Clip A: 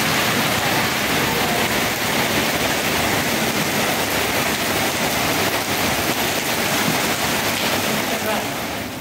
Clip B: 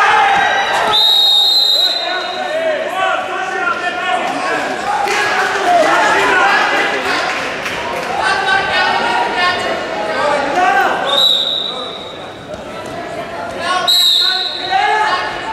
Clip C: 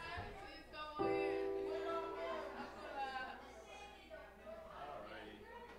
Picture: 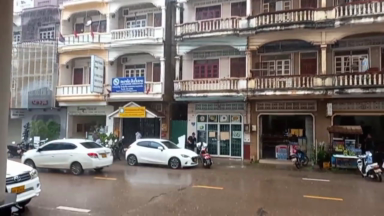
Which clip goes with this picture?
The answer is A